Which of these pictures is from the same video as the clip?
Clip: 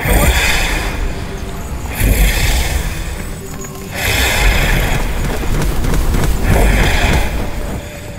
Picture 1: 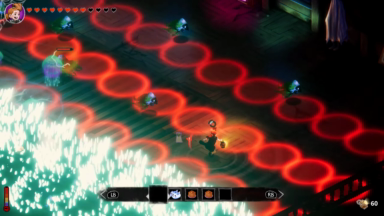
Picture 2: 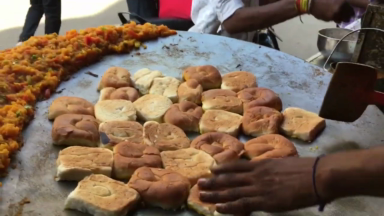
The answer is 1